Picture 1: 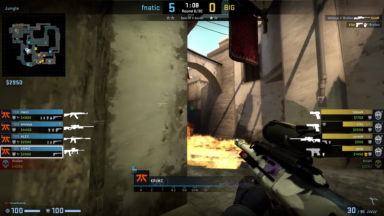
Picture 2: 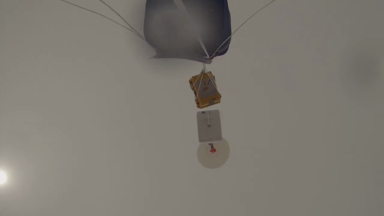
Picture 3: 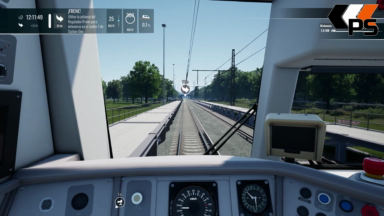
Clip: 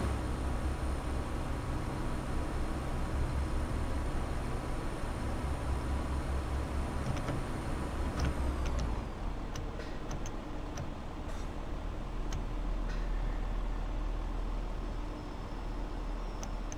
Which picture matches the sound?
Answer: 3